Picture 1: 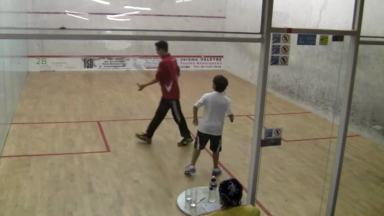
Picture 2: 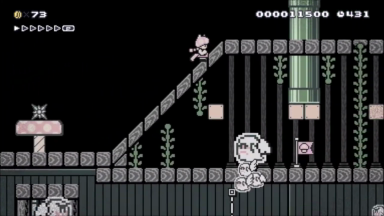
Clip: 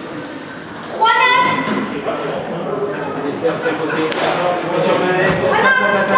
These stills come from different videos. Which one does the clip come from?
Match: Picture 1